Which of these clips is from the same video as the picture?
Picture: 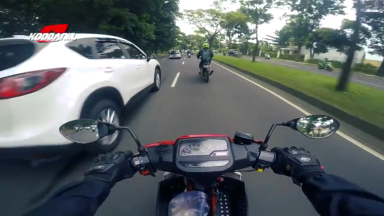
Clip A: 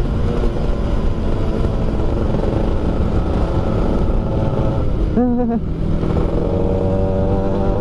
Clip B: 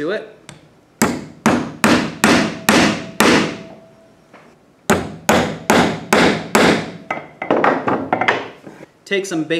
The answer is A